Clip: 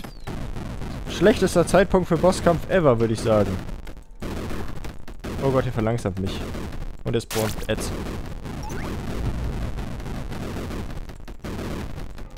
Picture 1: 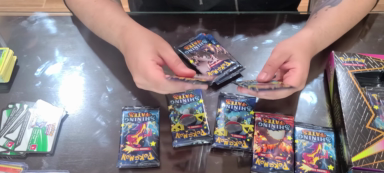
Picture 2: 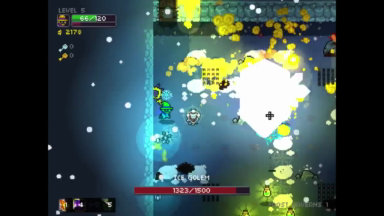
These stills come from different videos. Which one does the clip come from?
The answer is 2